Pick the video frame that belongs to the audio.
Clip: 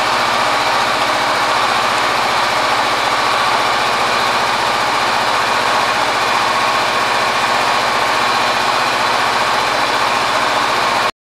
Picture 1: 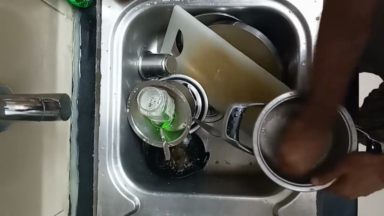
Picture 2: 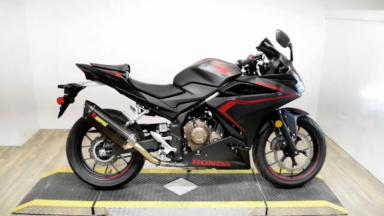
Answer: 2